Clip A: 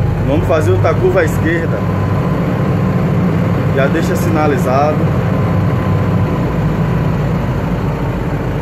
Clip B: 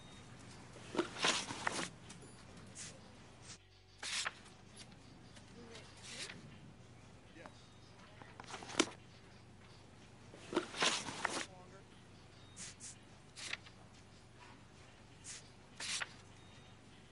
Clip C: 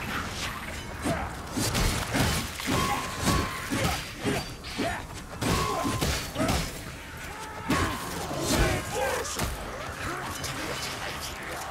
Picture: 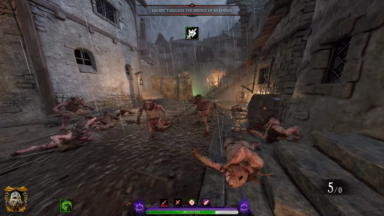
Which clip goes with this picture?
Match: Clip C